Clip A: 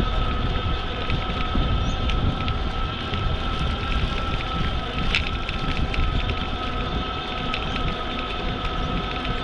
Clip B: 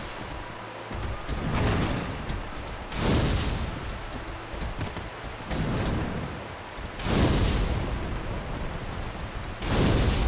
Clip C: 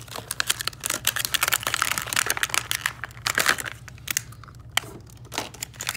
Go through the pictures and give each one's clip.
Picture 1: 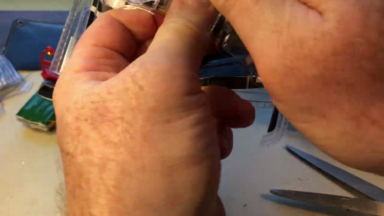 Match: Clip C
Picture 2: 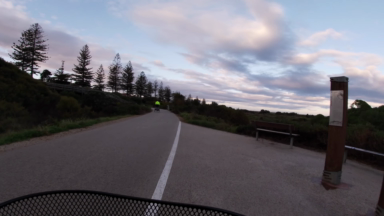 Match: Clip A